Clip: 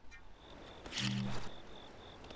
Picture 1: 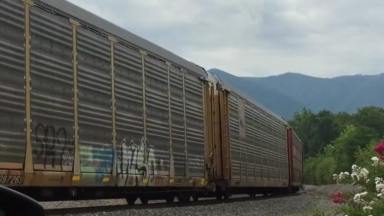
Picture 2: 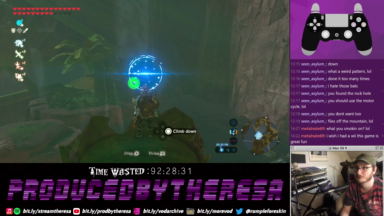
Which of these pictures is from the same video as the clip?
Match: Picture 2